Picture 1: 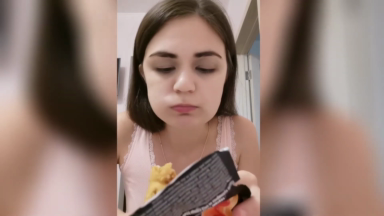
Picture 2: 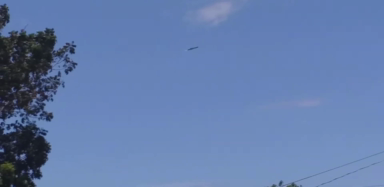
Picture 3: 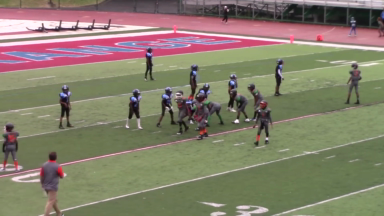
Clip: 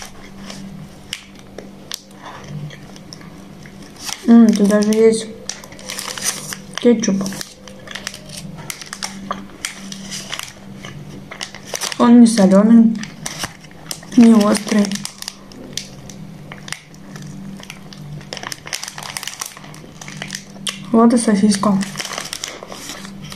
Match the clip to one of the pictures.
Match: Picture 1